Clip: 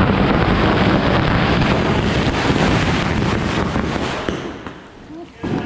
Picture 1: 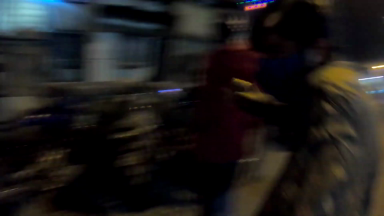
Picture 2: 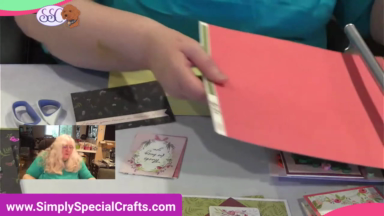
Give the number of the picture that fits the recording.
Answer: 1